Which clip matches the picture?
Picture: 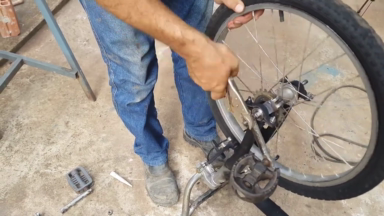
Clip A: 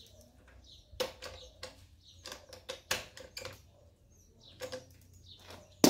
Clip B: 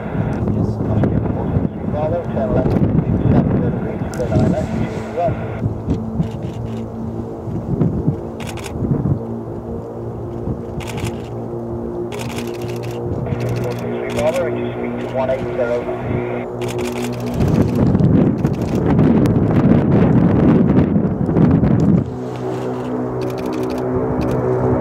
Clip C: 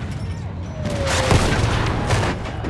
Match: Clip A